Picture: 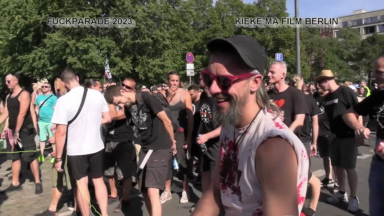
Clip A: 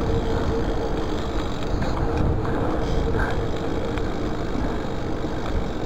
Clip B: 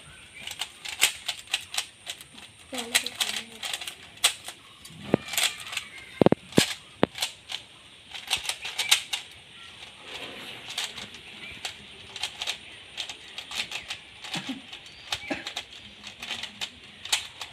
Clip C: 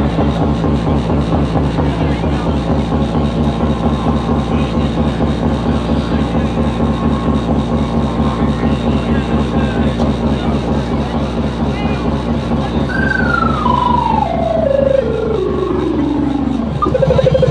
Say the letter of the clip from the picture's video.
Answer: C